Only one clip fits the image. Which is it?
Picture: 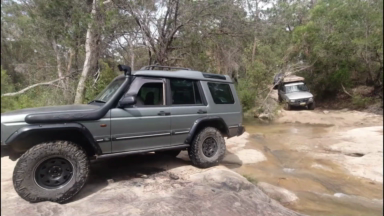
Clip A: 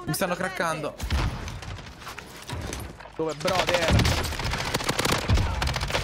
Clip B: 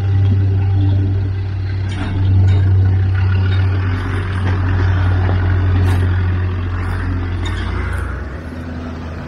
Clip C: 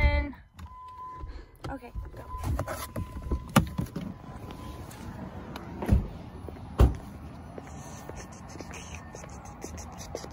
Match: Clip B